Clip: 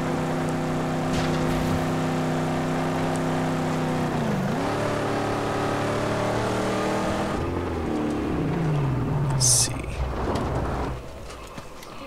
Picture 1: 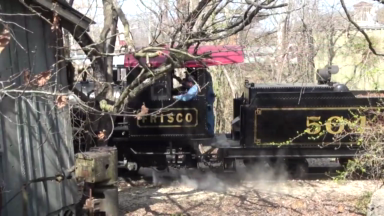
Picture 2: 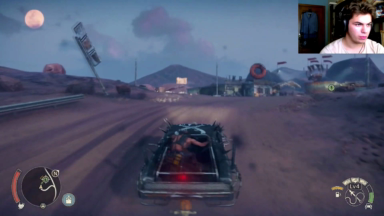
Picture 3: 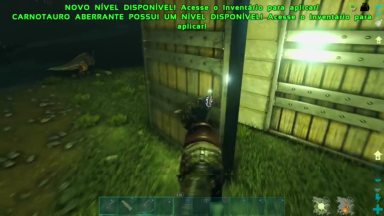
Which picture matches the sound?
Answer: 2